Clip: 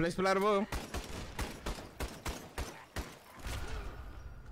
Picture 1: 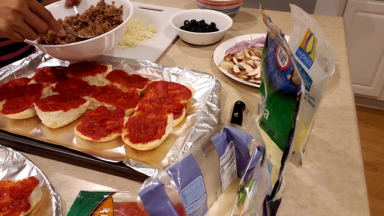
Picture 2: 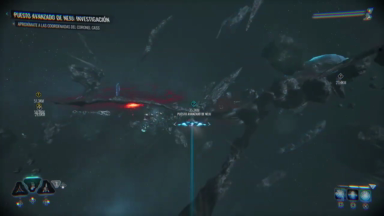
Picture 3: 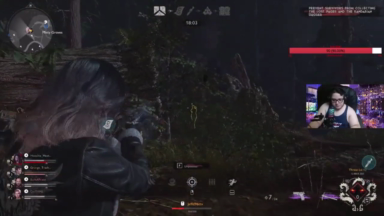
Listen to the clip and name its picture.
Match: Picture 3